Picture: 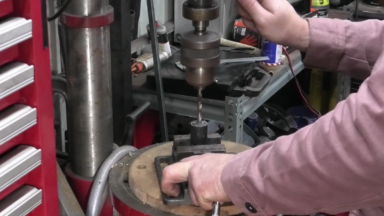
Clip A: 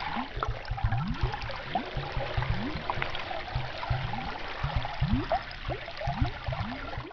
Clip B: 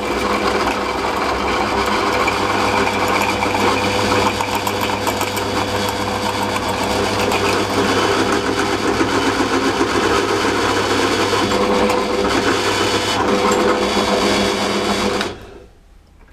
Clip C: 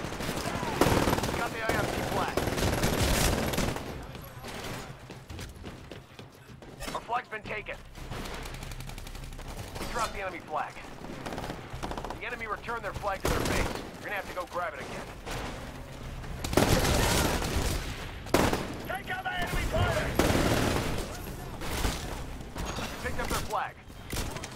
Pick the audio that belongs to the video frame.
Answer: B